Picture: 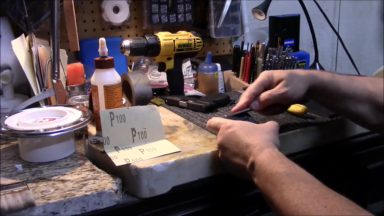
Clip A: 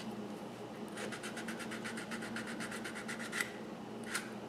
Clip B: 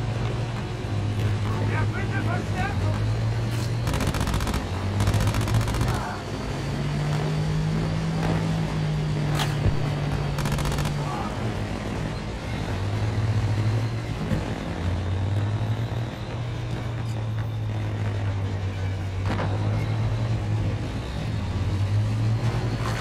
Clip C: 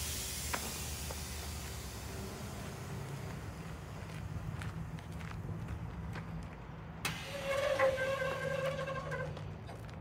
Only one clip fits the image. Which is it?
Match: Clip A